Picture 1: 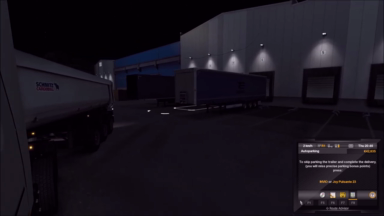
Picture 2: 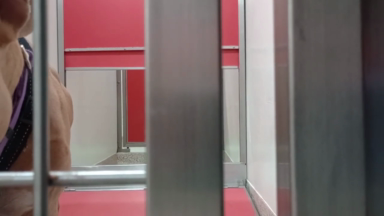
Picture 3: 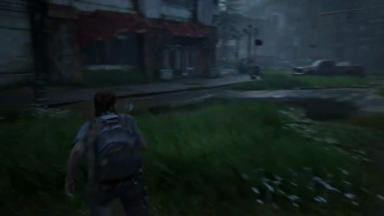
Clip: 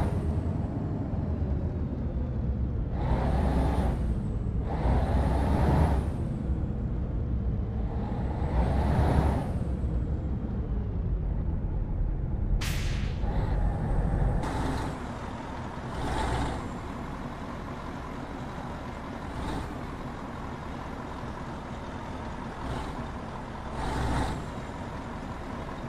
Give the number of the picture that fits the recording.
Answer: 1